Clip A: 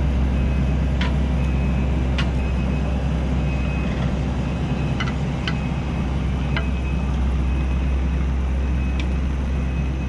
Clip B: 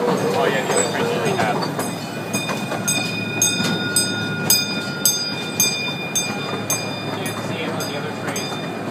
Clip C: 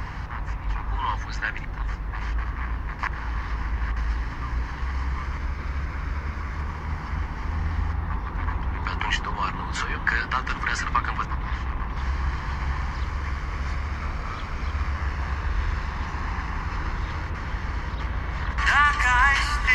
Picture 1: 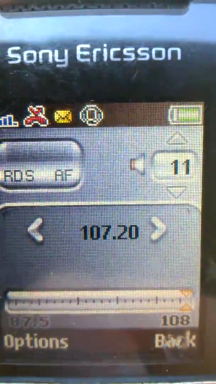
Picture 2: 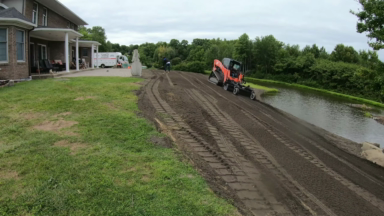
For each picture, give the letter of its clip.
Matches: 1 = C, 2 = A